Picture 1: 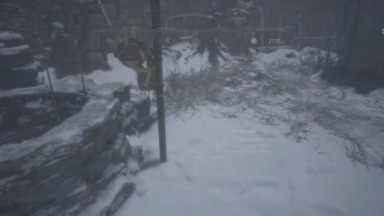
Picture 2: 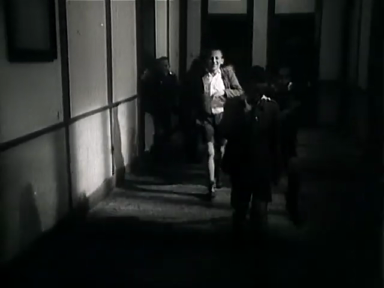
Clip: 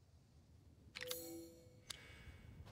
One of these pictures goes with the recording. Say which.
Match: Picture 1